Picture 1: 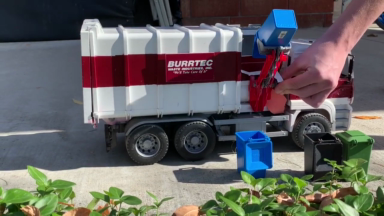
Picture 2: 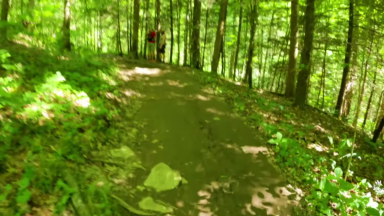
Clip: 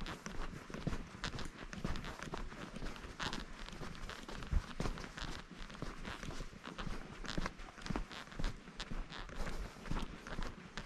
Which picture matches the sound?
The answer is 2